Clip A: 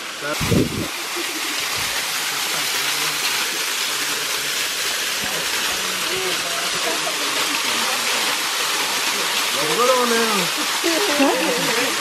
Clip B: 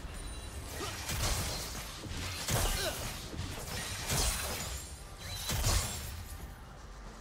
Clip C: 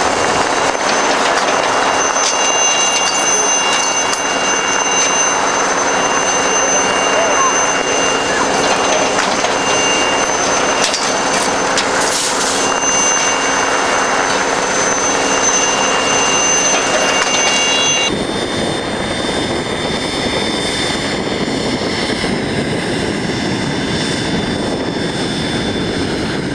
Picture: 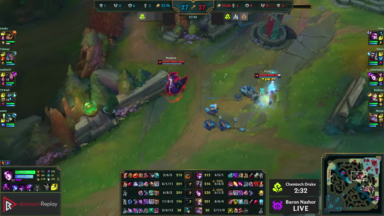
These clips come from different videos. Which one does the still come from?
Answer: B